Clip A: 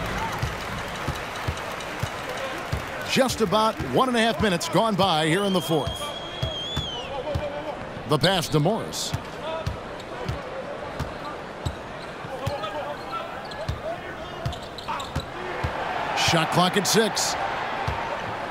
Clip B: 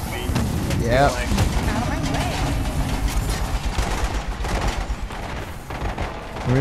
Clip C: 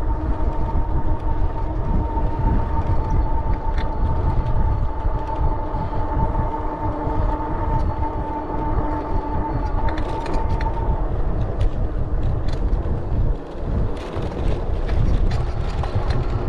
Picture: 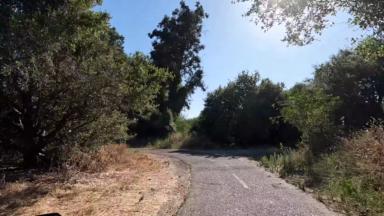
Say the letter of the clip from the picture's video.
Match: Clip C